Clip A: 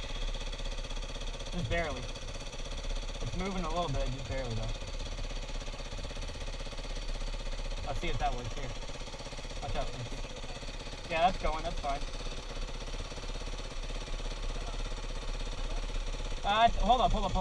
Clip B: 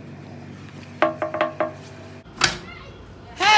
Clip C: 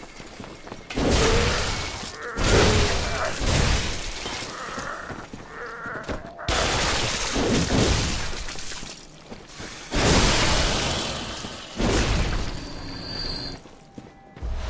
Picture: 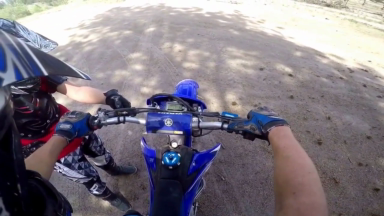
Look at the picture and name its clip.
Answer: A